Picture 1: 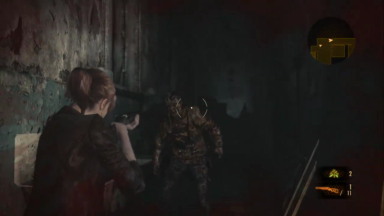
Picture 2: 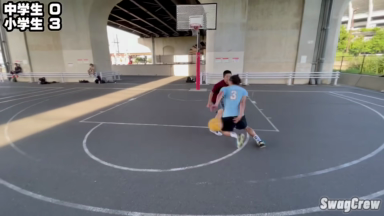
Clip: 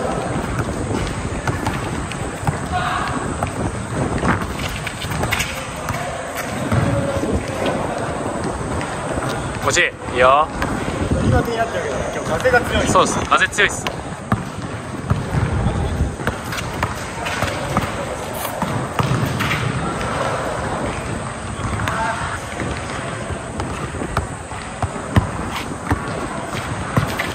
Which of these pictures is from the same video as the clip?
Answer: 2